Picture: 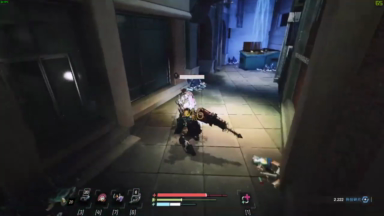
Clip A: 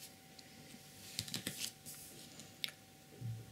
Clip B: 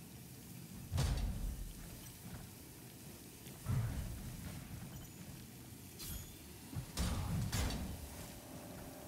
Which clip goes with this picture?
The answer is B